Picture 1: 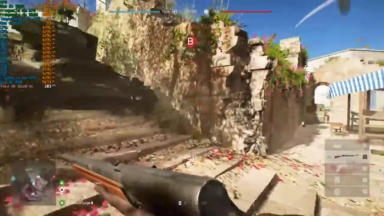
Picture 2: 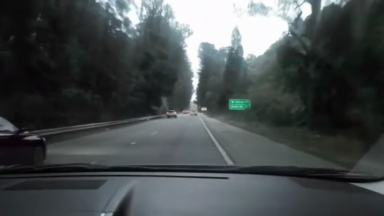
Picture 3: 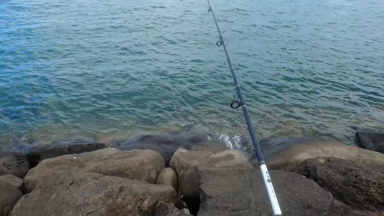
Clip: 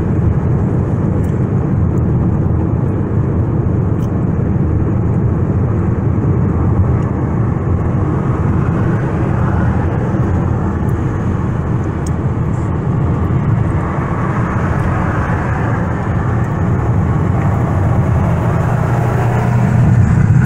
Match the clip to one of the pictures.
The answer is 2